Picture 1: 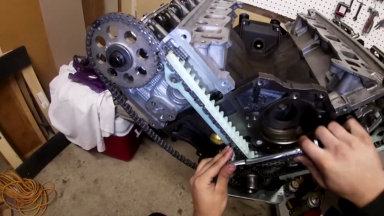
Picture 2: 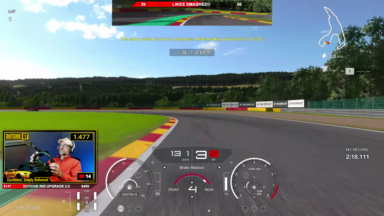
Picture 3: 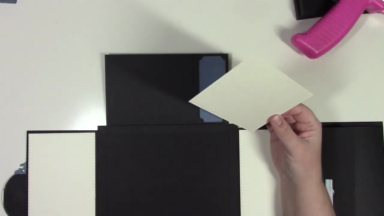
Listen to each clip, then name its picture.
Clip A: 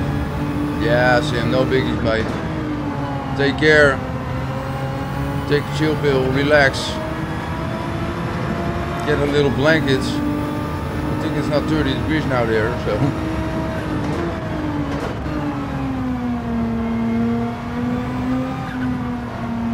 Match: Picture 2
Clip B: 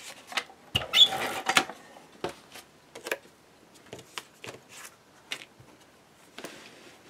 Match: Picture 3